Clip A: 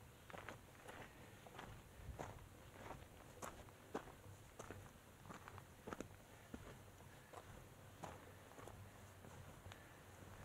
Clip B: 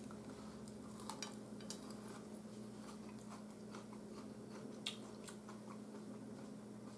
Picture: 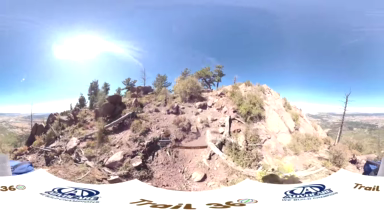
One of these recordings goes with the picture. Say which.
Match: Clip A